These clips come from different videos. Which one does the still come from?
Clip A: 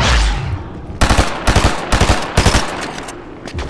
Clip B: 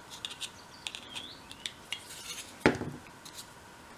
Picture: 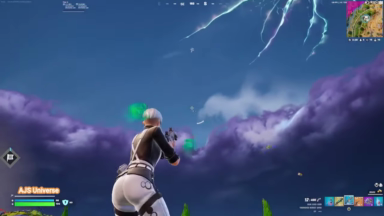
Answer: A